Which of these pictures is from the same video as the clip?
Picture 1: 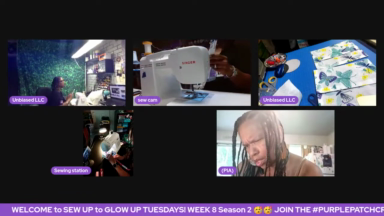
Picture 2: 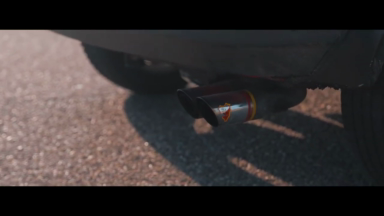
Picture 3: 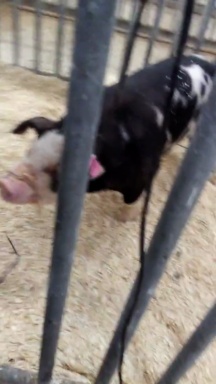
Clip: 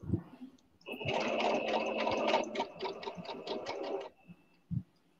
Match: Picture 1